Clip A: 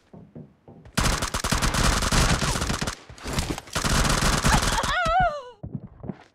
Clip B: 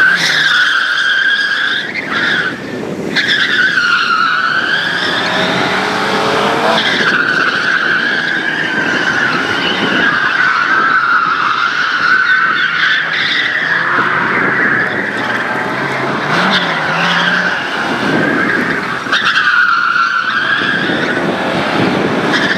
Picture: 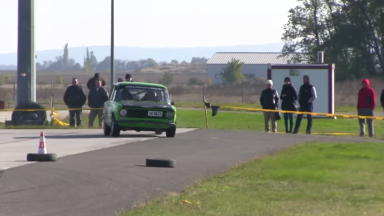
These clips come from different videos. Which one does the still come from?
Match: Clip B